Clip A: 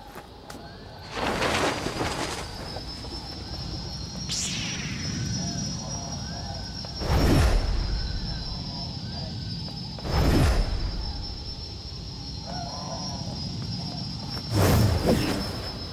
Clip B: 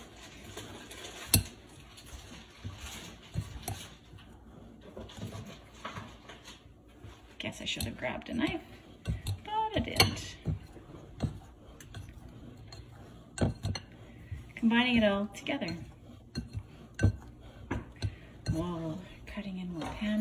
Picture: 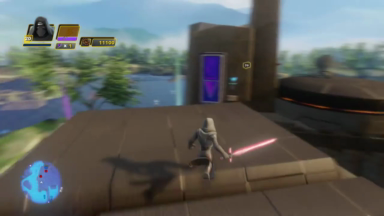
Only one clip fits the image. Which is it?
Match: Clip A